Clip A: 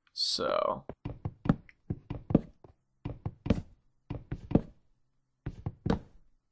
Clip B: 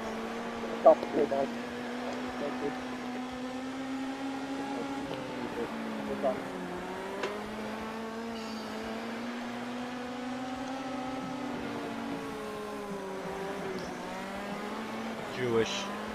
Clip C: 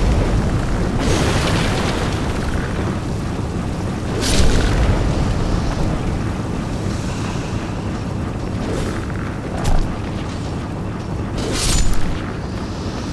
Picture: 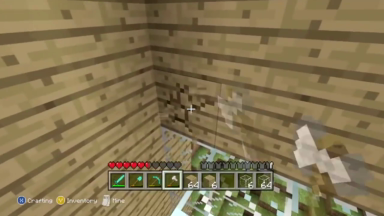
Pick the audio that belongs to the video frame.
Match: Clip A